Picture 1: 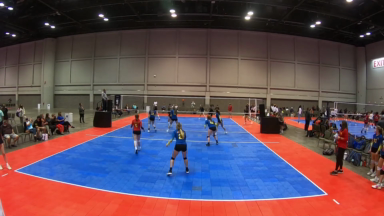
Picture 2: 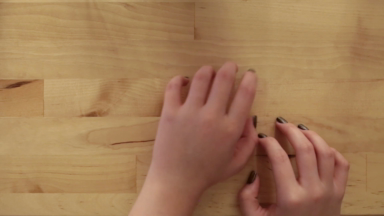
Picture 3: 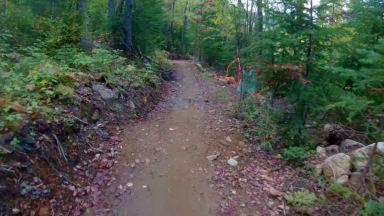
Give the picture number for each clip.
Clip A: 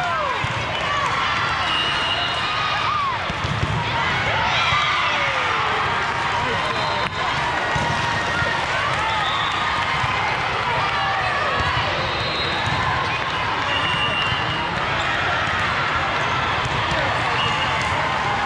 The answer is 1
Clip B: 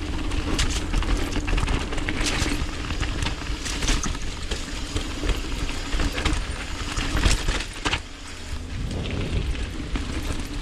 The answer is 3